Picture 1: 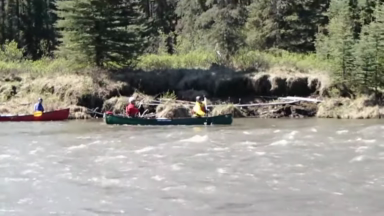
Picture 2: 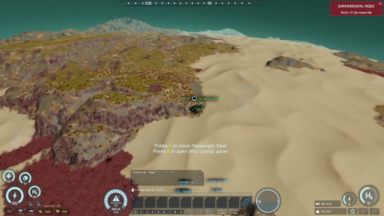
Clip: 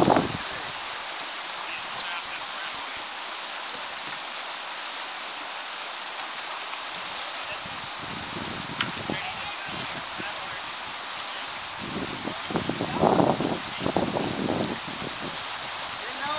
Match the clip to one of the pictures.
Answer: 1